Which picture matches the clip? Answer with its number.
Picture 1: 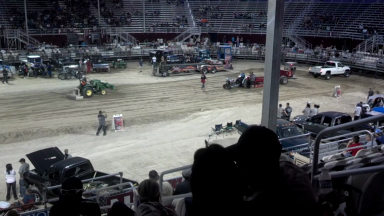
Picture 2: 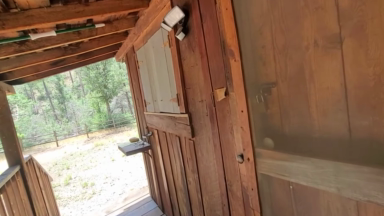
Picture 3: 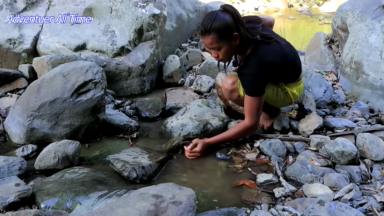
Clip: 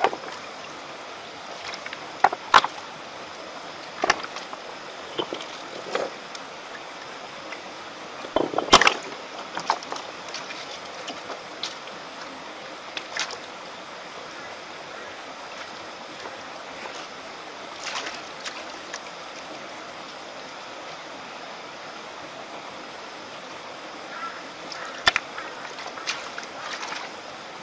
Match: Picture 3